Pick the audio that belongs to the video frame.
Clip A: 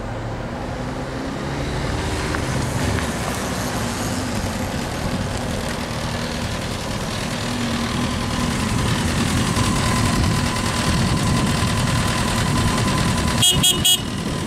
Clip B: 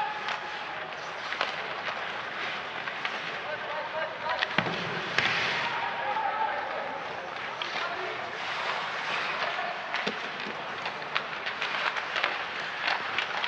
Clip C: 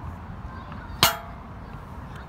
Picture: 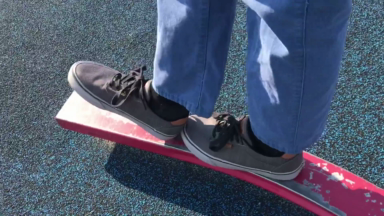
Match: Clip C